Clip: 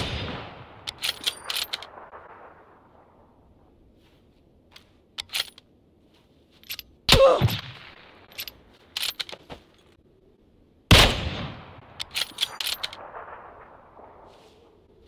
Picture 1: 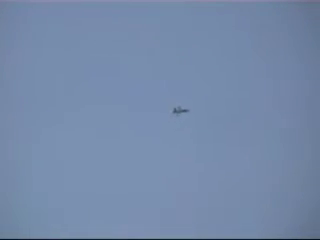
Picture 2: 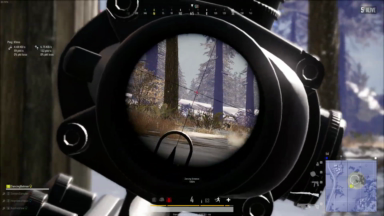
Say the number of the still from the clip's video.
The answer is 2